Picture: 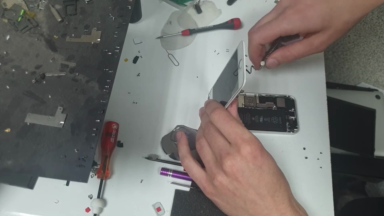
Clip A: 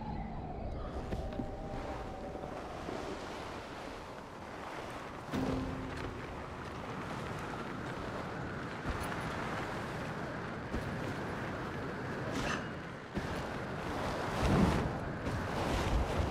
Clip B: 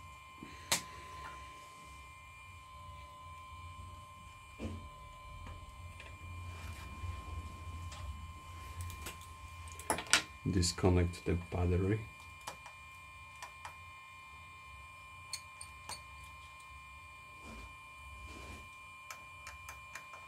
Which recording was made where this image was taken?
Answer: B